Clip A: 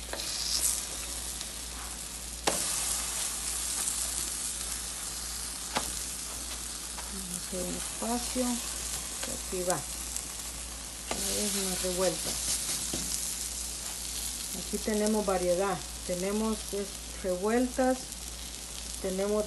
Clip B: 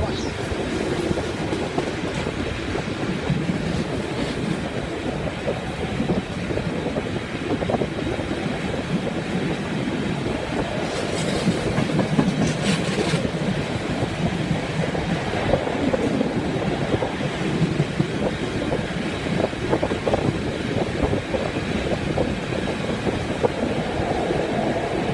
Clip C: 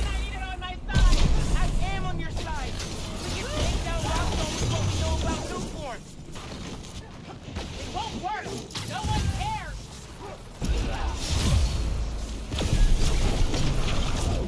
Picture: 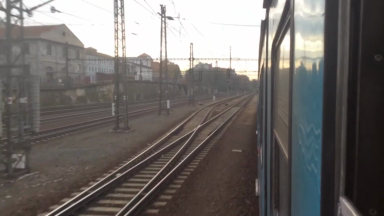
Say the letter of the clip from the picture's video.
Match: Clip B